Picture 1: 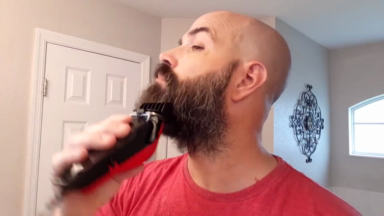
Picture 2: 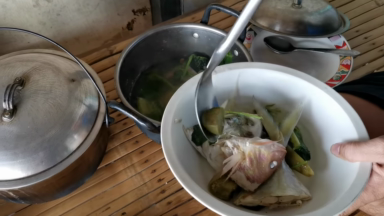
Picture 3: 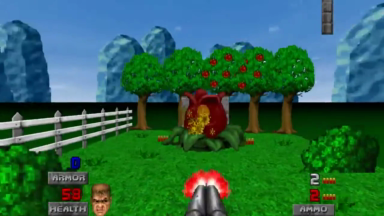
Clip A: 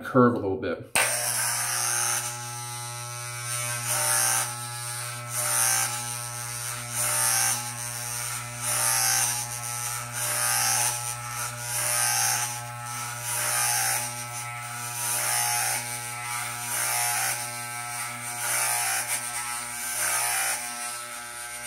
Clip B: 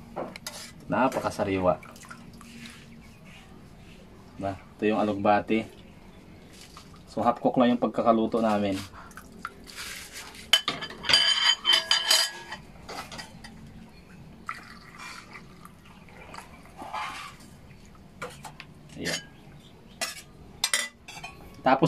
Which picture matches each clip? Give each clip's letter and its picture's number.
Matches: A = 1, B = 2